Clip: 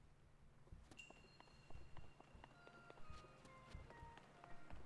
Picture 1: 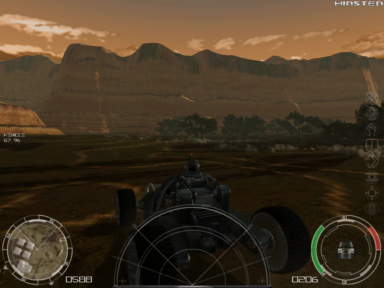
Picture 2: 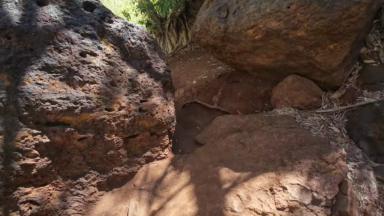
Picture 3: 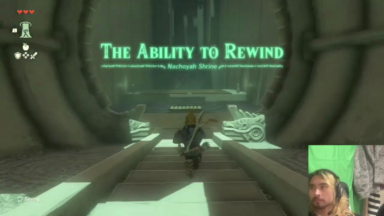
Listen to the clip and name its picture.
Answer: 3